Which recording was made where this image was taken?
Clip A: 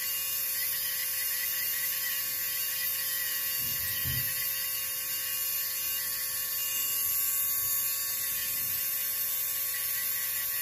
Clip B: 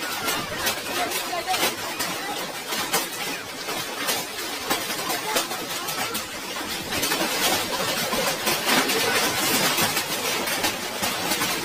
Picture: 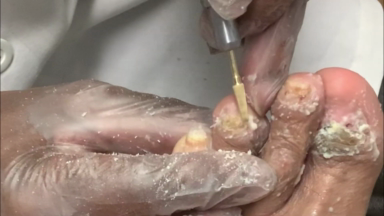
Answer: A